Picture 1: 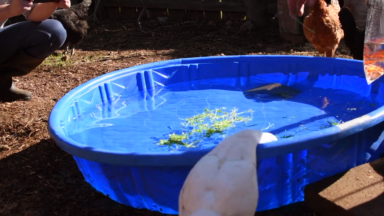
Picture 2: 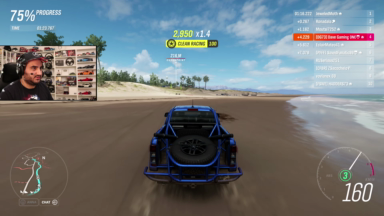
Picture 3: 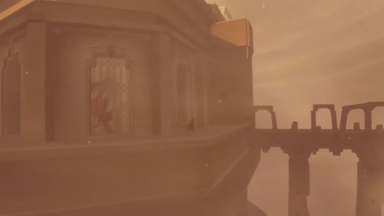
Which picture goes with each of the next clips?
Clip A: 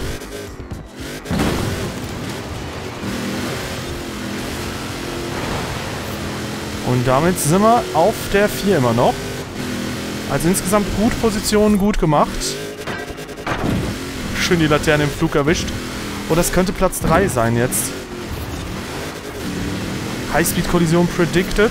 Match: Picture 2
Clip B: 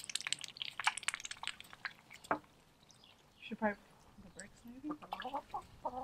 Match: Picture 1